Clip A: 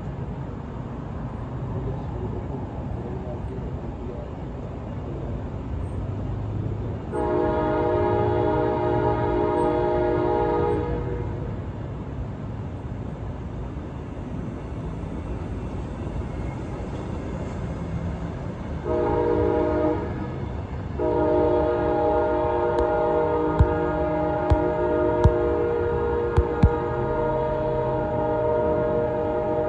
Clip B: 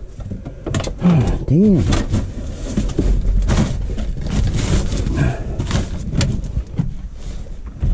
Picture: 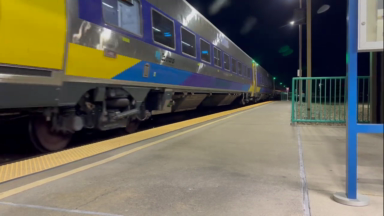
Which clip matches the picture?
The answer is A